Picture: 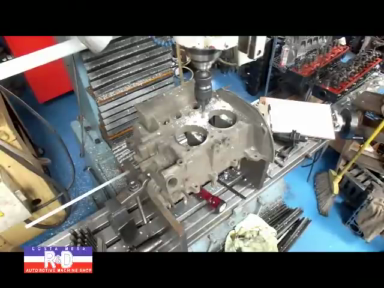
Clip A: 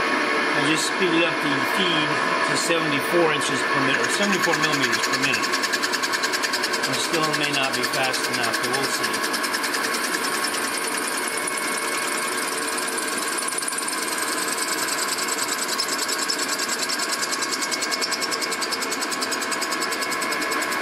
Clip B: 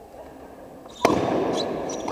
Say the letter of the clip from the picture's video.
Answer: A